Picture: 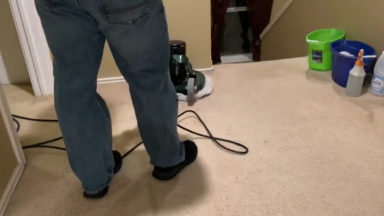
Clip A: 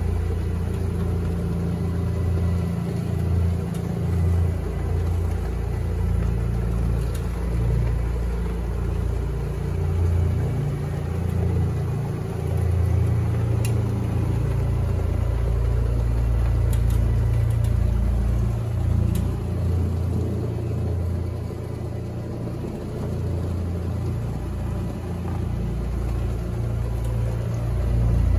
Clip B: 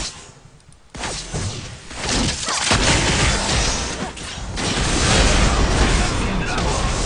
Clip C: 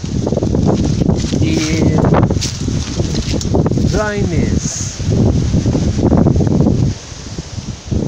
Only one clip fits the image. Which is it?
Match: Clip A